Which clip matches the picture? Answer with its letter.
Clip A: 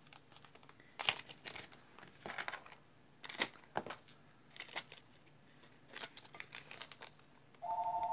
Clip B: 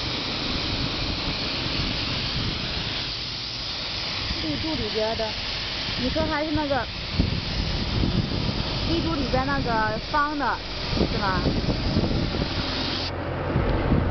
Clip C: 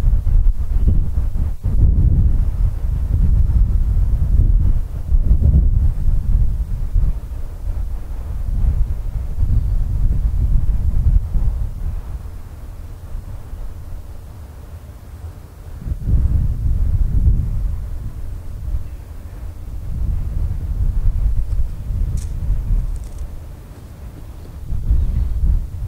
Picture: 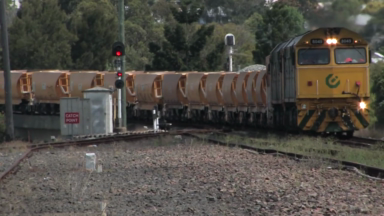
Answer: C